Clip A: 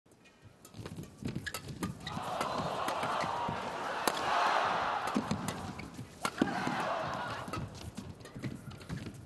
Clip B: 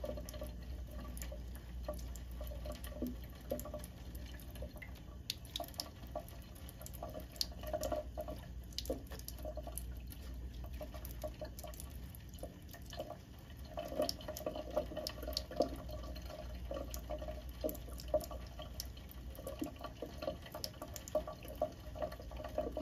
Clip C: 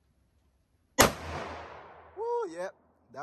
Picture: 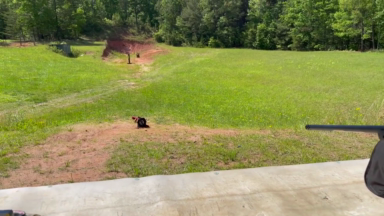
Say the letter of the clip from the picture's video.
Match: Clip C